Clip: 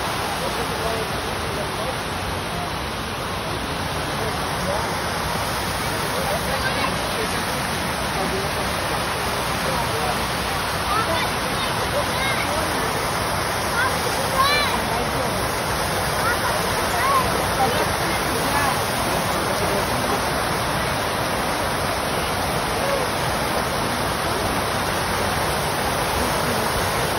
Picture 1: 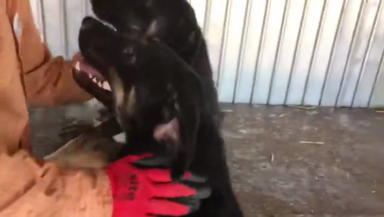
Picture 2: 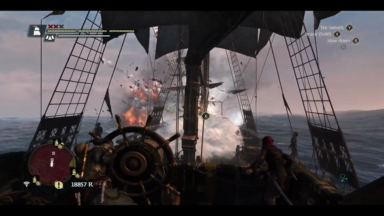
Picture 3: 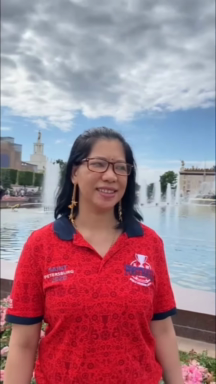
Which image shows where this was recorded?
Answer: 3